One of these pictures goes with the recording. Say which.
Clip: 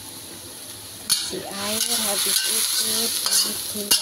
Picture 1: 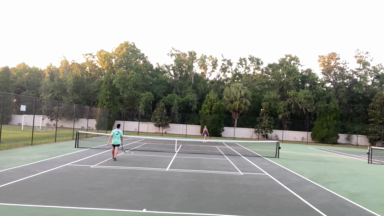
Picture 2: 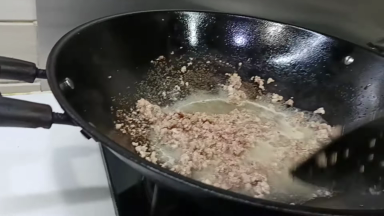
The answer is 2